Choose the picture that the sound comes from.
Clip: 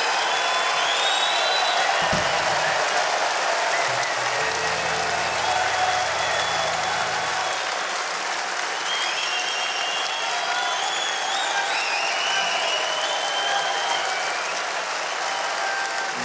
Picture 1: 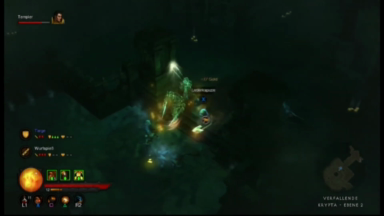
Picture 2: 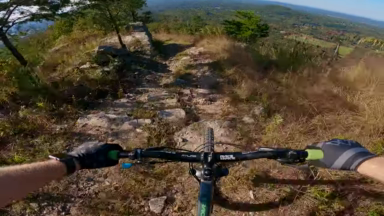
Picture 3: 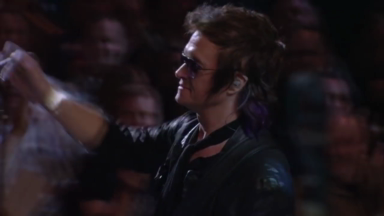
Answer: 3